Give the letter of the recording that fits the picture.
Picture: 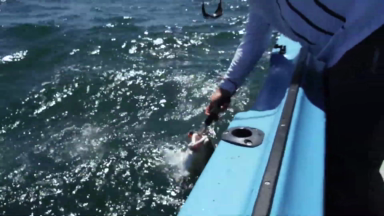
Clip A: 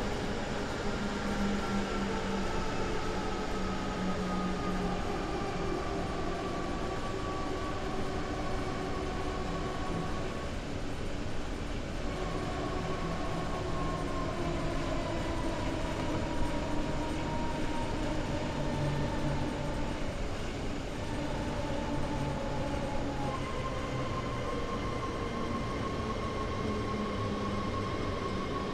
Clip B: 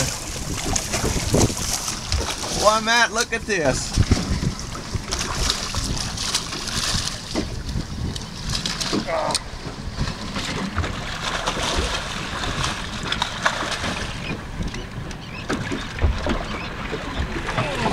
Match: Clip B